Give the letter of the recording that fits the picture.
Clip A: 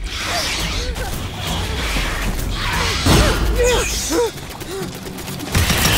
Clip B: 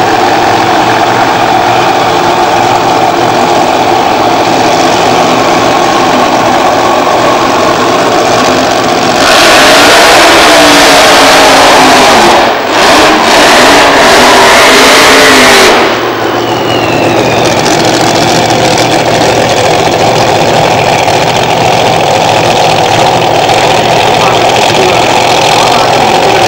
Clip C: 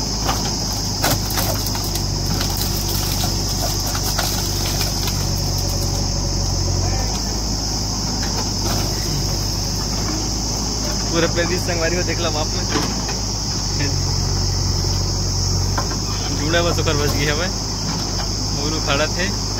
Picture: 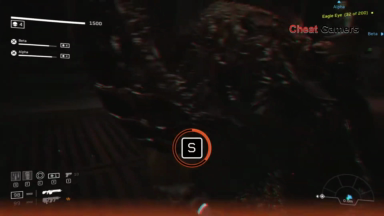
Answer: A